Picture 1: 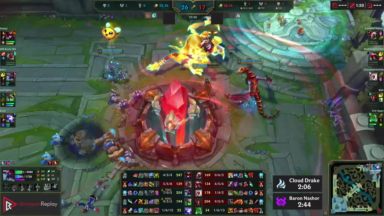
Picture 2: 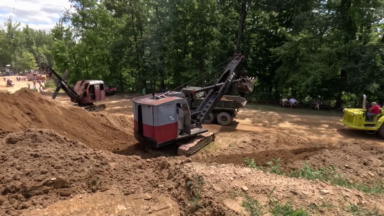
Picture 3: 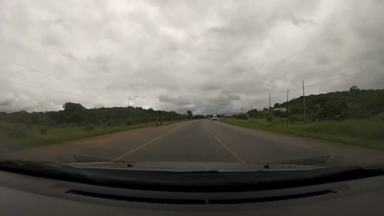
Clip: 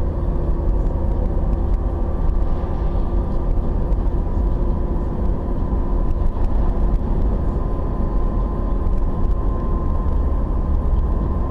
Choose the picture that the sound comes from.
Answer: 3